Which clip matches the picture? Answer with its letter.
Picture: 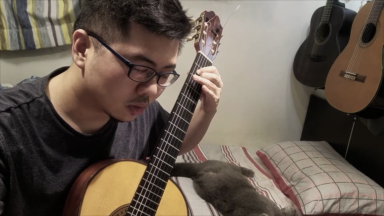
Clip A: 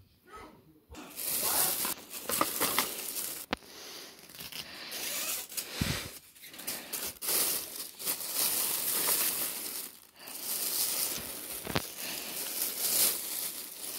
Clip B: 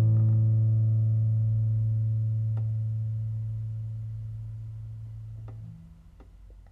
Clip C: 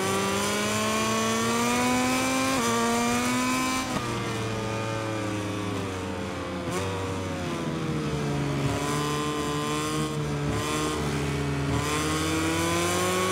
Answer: B